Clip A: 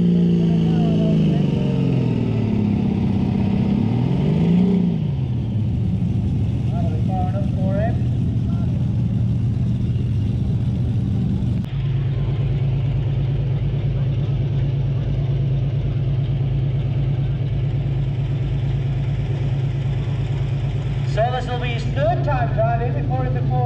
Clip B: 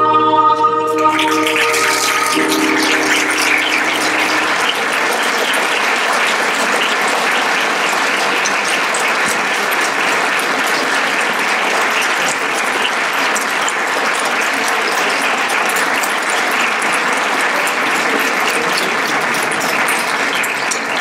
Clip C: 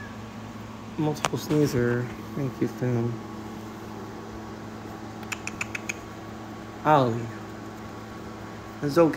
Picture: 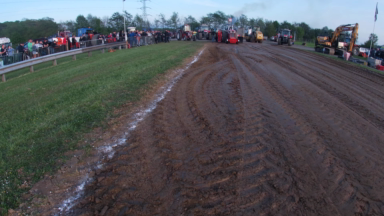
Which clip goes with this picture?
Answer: A